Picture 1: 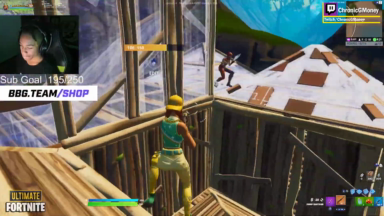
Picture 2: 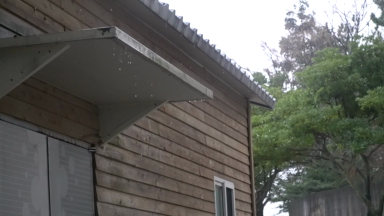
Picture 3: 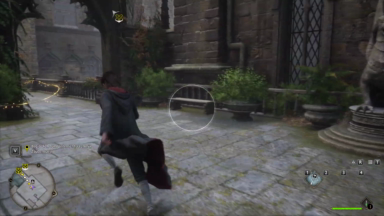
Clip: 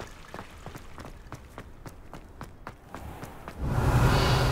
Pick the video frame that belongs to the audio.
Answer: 3